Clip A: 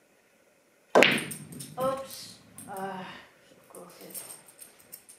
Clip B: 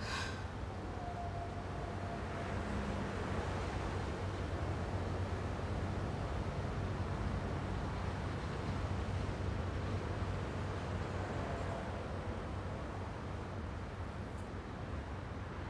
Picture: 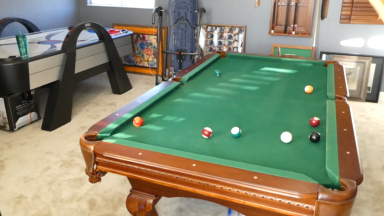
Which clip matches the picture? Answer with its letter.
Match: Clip A